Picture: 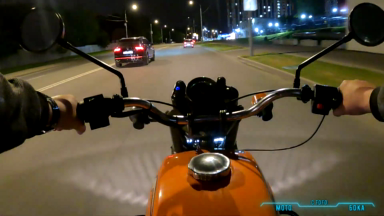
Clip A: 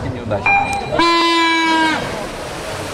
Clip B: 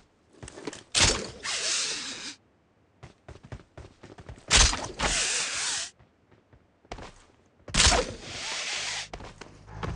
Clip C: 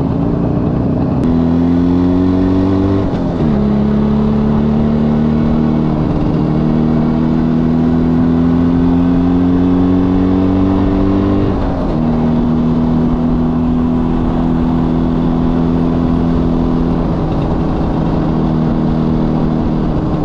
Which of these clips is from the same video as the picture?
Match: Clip C